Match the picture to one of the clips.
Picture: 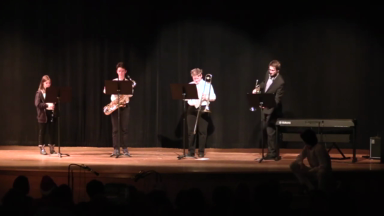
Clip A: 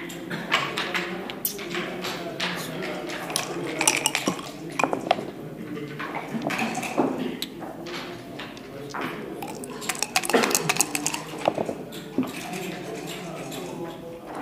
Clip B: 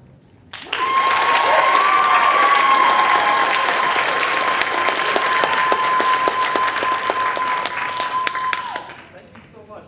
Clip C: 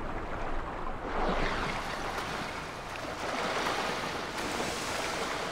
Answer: B